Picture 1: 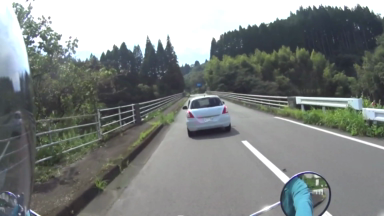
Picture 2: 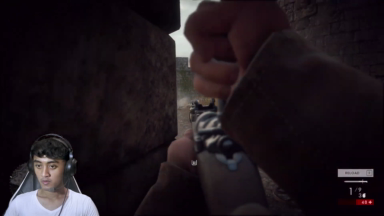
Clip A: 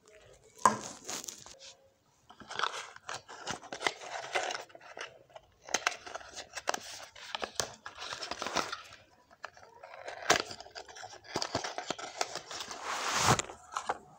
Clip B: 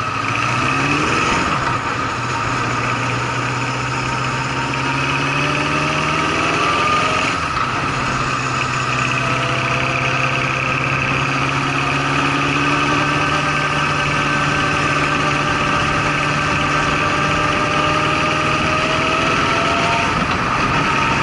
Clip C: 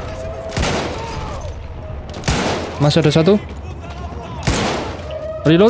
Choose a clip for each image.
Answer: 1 B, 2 C